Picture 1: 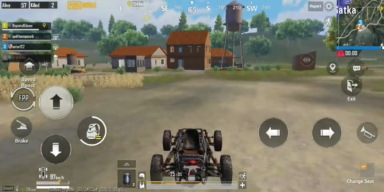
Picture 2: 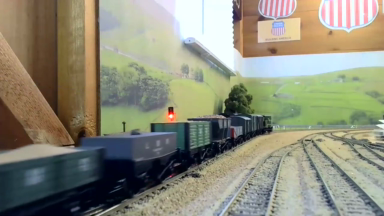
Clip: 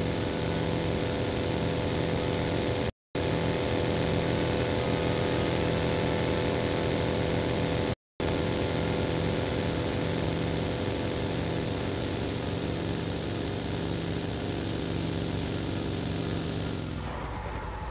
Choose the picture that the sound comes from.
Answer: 1